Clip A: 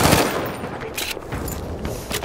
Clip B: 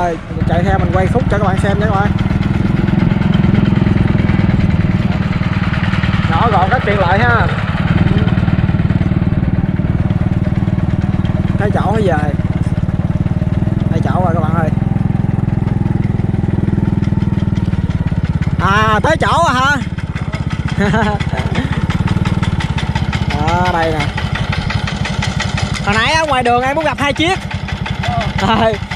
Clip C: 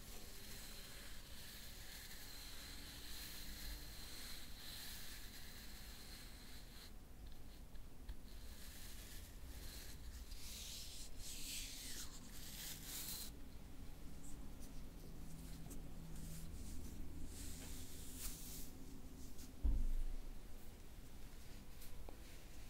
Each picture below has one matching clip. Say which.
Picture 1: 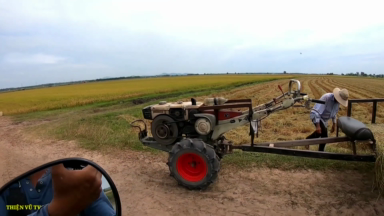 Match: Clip B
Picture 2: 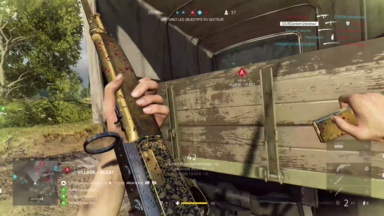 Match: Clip A